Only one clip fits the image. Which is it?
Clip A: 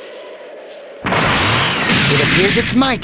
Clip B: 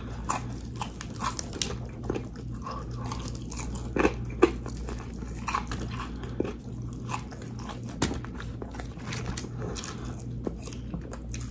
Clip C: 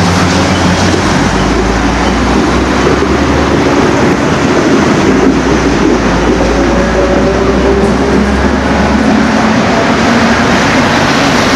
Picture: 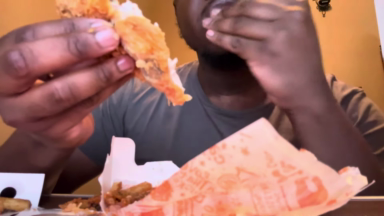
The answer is B